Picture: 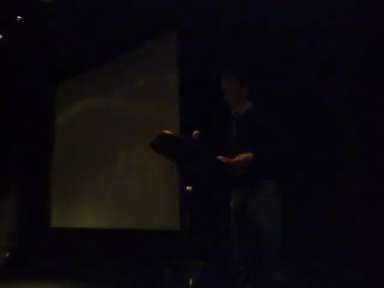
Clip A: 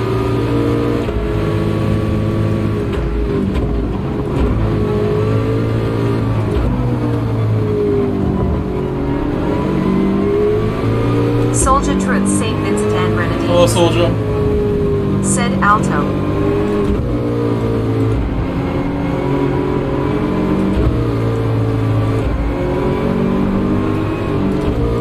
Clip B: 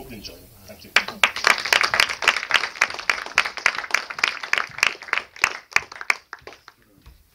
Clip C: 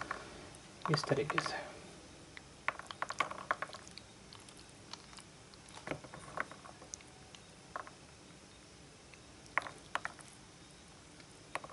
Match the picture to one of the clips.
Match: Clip B